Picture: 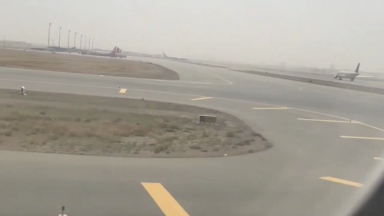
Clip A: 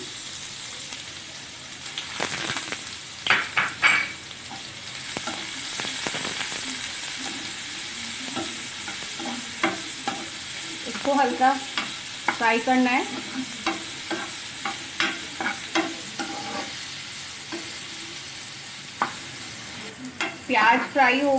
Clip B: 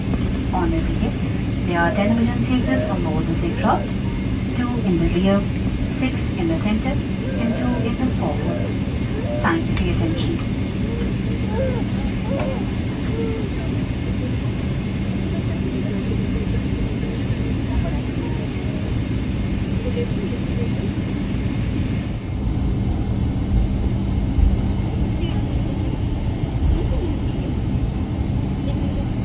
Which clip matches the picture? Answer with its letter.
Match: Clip B